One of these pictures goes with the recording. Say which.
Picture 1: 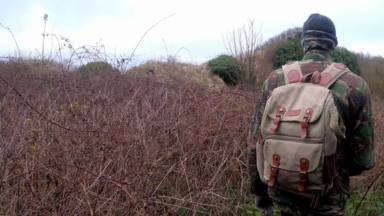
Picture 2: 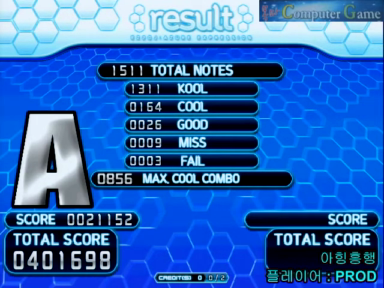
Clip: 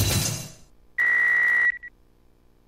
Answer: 2